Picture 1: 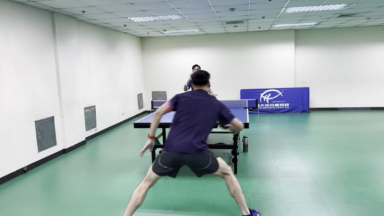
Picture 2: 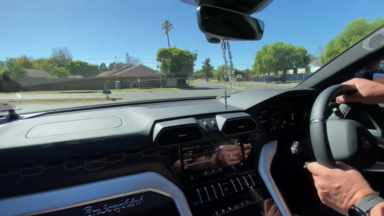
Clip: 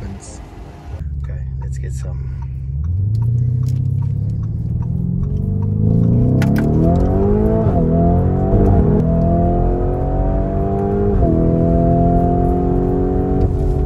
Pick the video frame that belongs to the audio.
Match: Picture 2